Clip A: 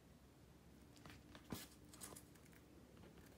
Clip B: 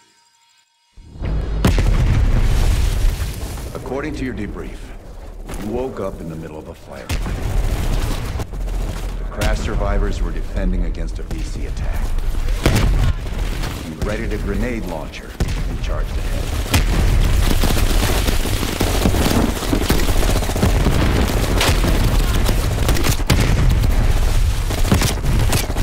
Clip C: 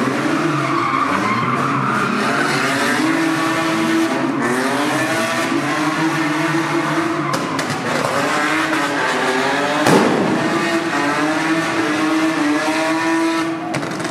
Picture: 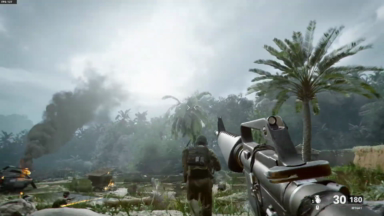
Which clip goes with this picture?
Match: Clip B